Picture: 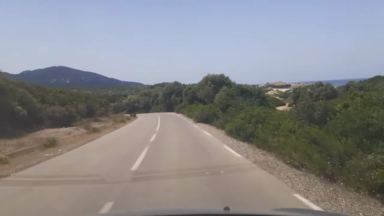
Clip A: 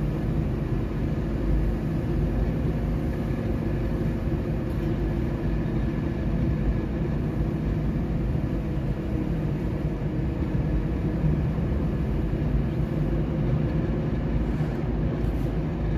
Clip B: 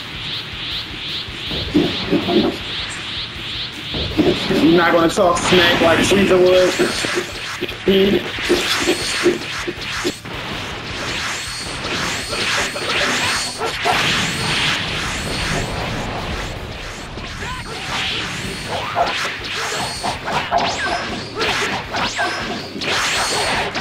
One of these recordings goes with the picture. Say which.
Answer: A